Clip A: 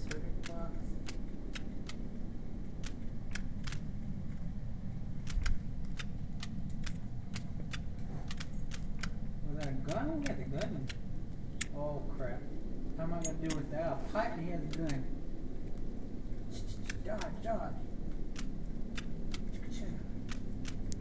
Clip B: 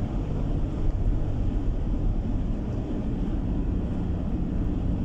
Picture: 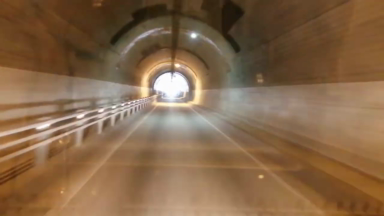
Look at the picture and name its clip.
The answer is B